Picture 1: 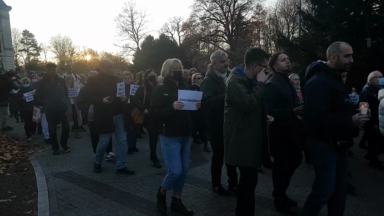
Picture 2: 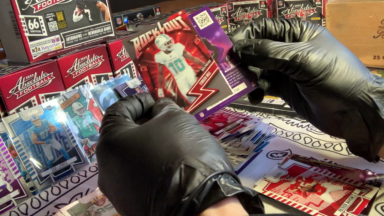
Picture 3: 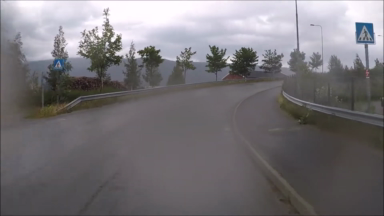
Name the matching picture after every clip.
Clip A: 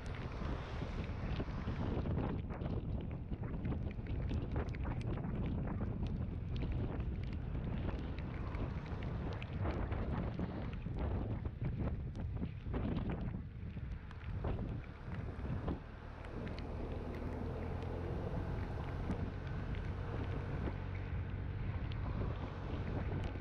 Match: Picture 3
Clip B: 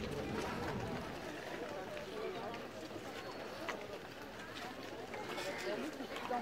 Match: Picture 1